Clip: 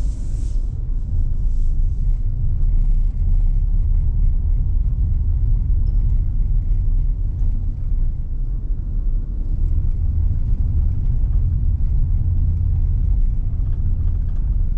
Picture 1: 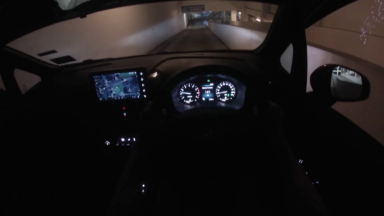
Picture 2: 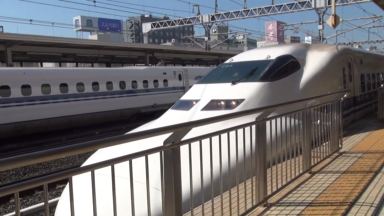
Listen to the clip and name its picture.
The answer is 1